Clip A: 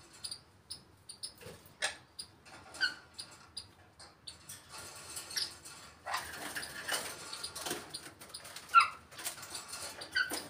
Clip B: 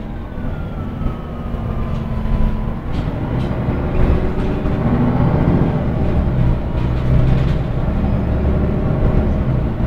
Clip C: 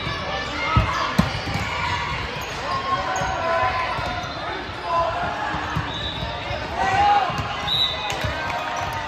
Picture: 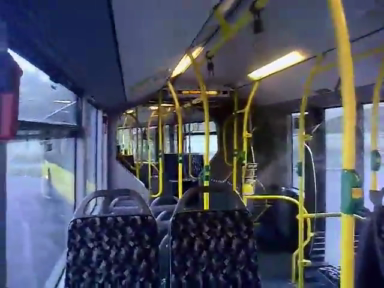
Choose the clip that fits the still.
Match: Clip B